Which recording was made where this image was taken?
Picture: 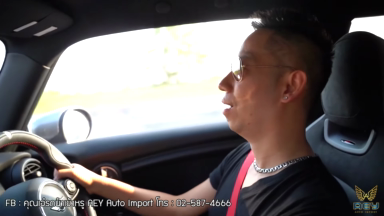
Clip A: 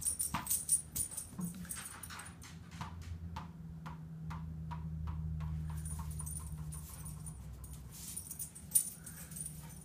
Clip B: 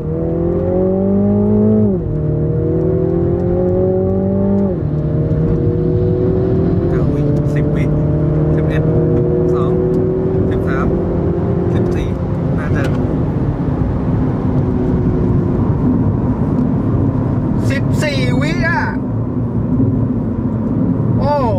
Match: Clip B